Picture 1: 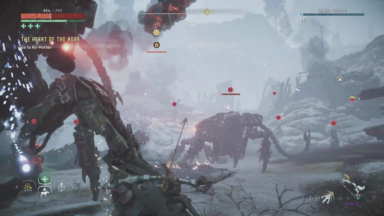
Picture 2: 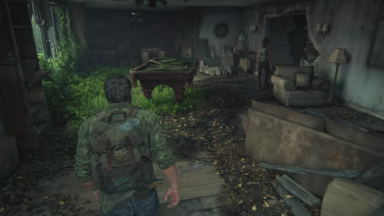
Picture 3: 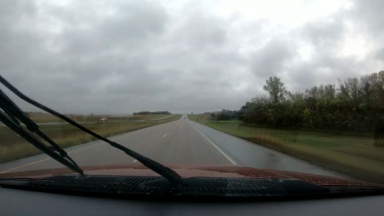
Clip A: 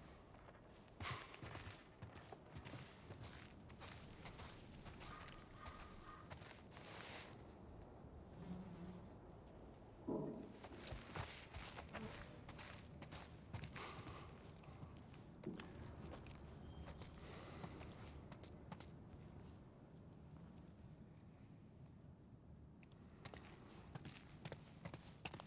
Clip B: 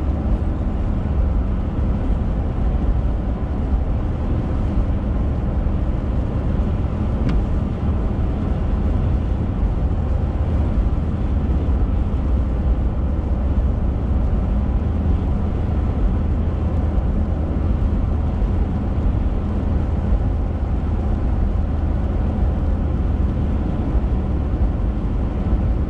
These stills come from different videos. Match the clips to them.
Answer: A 2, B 3